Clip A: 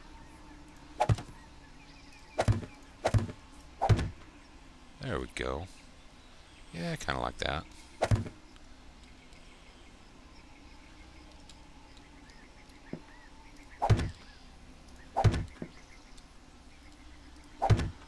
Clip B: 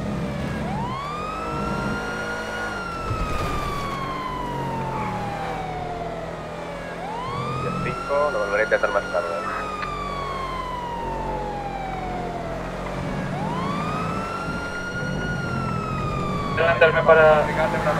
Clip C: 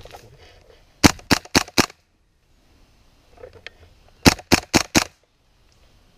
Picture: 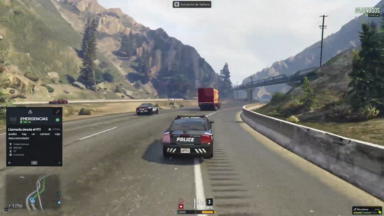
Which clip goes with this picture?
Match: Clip B